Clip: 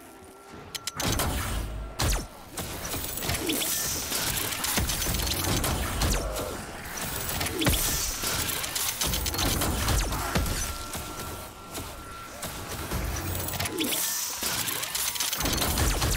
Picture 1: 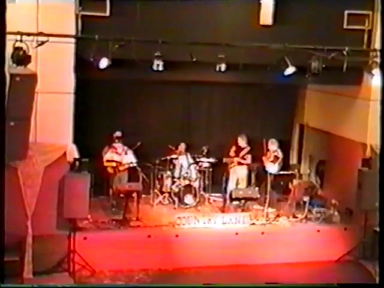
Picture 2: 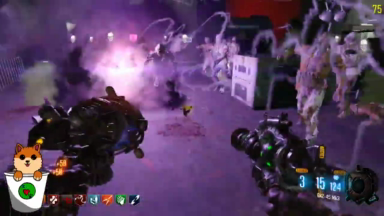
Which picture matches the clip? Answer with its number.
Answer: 2